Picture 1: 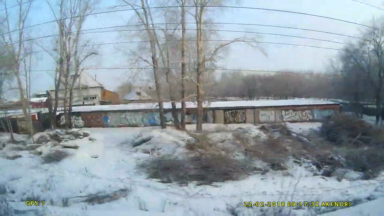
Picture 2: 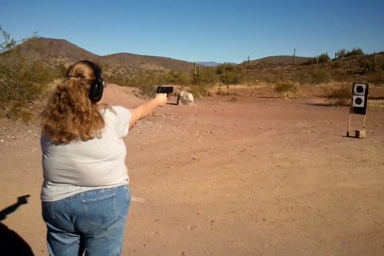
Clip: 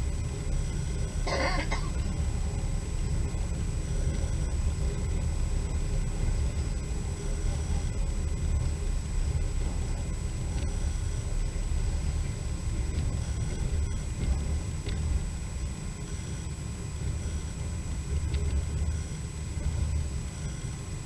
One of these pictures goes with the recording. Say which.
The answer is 1